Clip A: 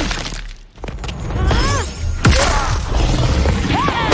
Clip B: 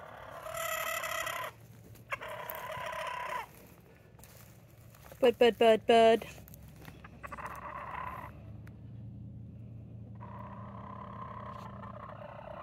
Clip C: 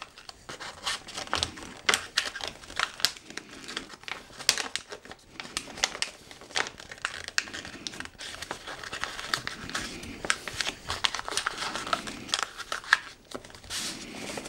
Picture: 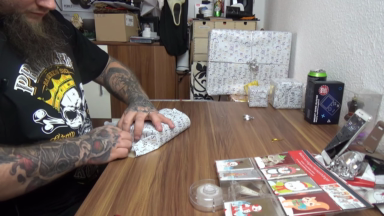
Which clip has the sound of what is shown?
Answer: C